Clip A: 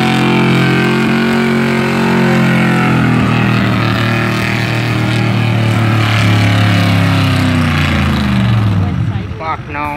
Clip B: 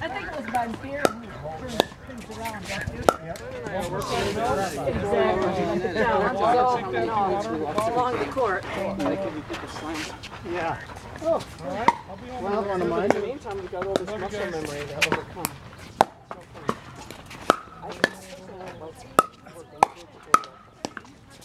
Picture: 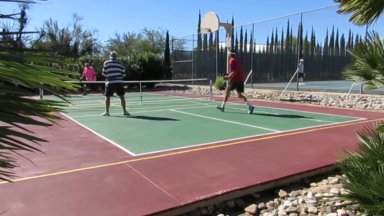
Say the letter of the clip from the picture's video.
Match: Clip B